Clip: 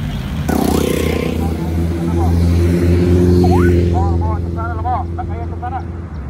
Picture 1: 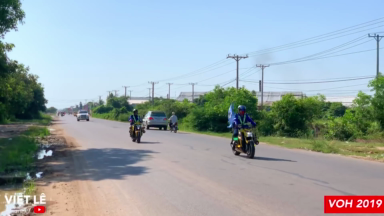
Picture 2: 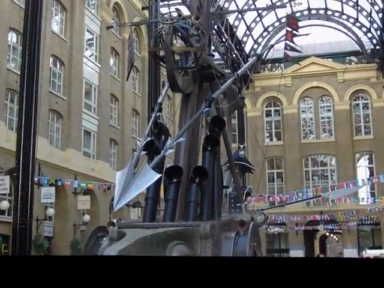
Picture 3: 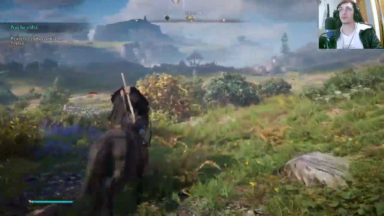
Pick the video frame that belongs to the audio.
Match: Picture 1